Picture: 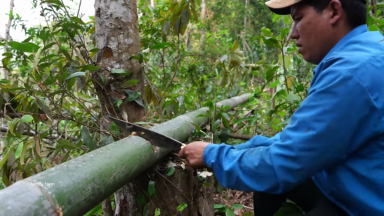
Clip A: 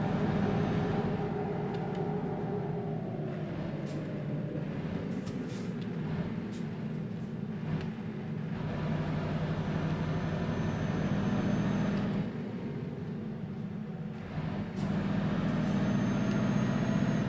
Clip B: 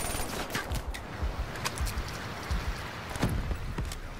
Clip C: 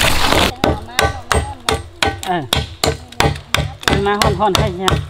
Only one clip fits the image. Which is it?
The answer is C